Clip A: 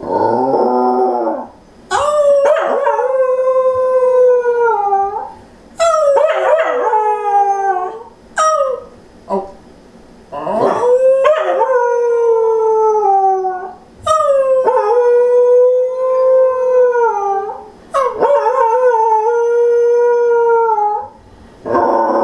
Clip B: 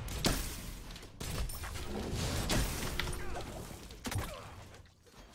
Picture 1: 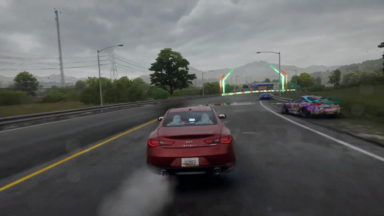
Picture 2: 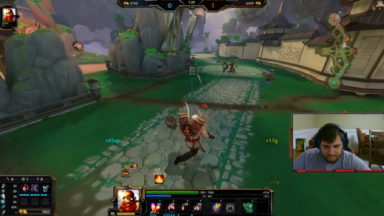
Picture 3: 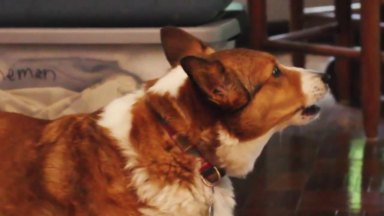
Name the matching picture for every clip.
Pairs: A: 3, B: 2